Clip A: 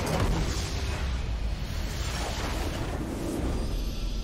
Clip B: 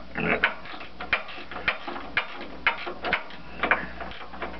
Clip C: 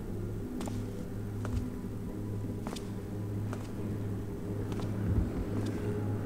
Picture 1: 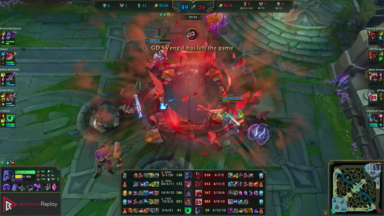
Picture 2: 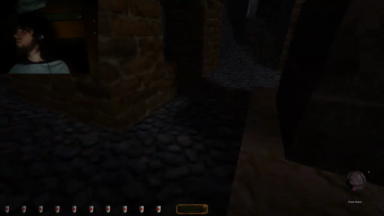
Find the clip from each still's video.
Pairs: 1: A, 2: C